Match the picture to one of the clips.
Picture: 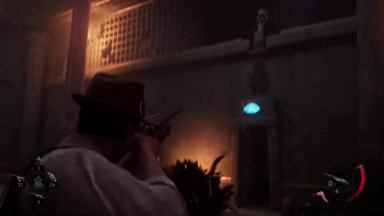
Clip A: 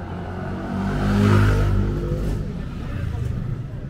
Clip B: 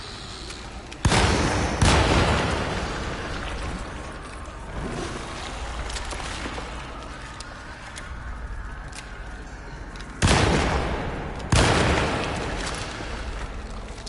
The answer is B